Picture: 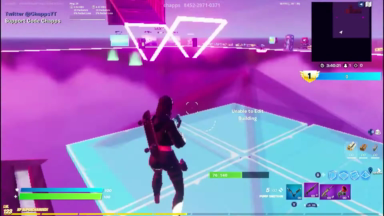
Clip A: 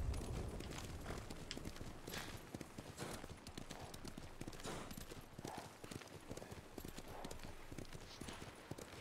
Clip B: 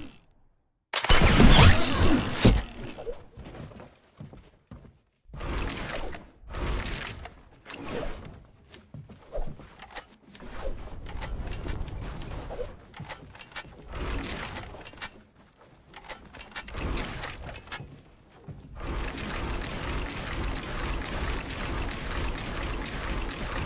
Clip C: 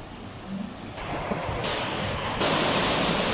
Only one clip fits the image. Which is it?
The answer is B